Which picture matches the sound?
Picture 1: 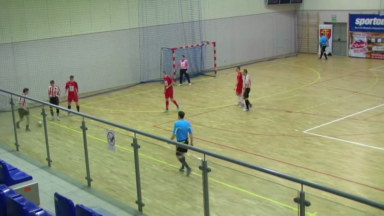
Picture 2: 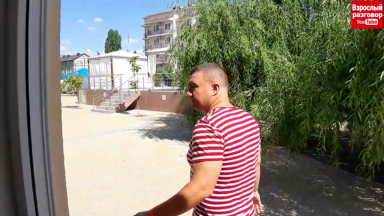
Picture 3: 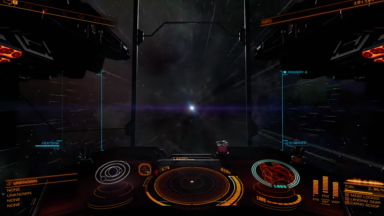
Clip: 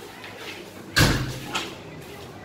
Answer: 2